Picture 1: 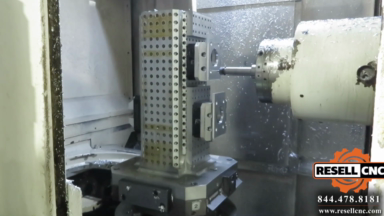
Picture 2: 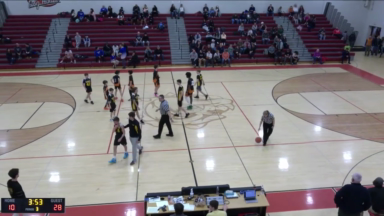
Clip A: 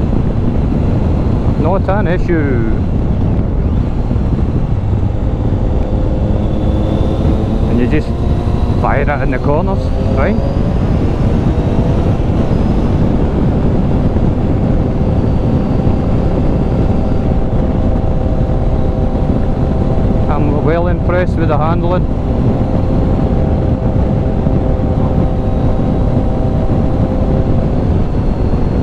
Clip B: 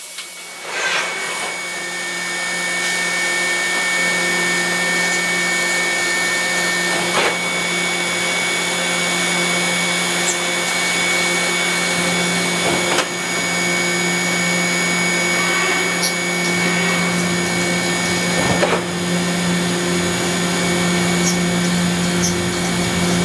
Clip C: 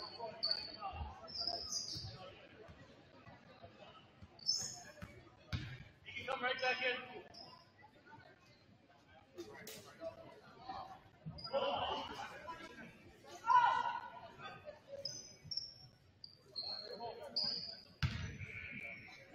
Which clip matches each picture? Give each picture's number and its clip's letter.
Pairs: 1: B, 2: C